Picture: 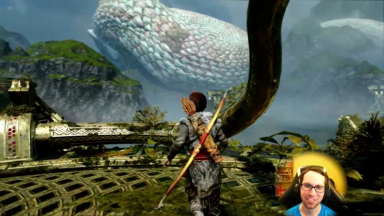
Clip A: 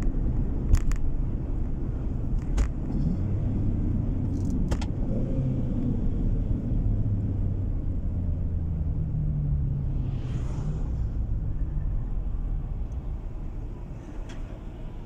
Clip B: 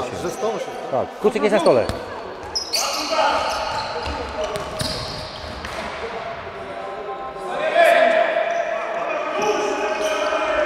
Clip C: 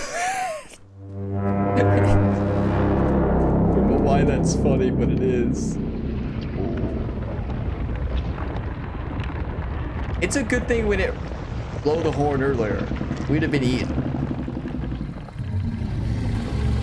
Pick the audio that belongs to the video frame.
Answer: C